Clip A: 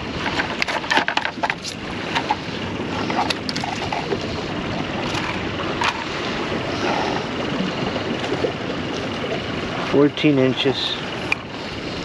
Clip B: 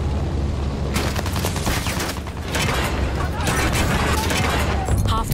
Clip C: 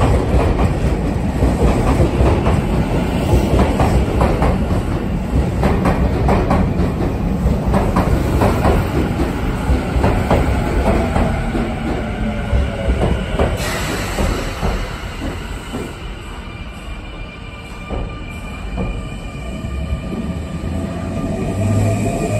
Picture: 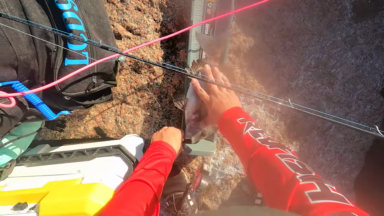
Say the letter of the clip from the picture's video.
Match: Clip A